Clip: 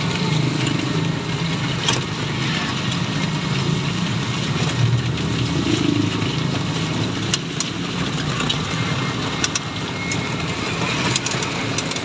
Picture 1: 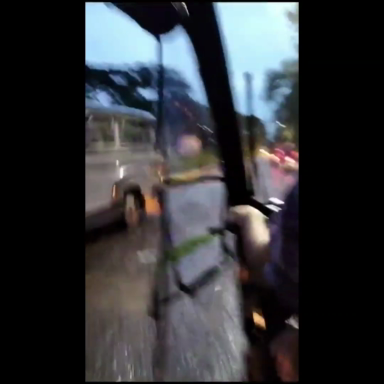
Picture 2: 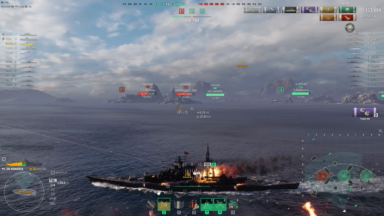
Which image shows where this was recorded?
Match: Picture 1